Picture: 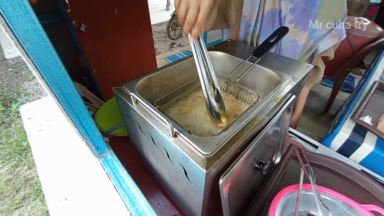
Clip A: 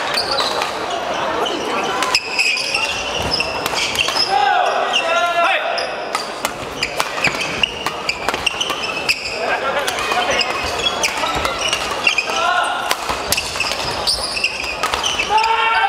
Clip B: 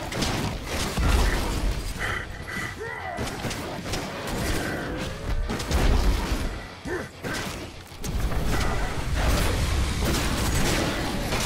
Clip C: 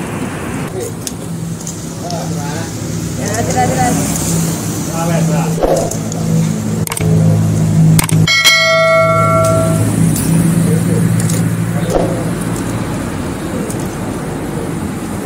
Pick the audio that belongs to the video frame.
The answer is C